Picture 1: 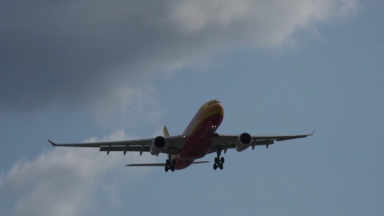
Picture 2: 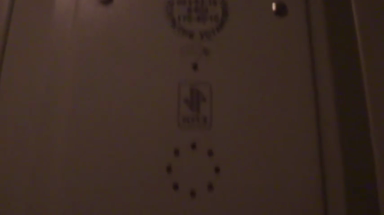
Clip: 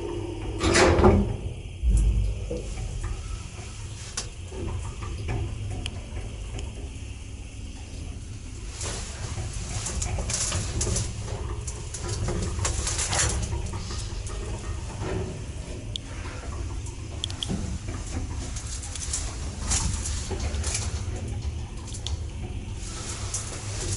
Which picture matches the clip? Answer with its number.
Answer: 2